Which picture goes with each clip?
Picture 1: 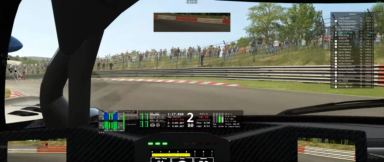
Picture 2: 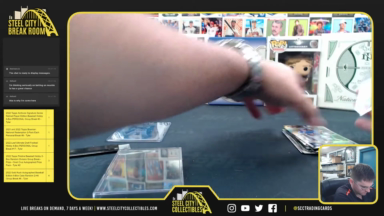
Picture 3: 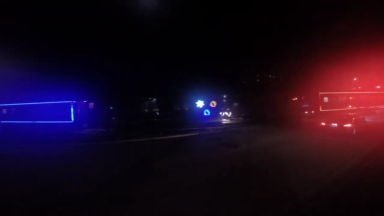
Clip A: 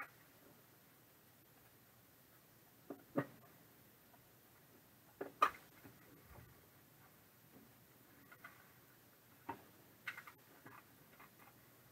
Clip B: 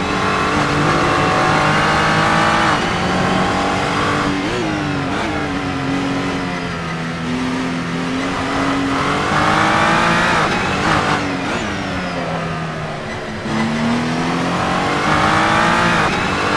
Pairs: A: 2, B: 1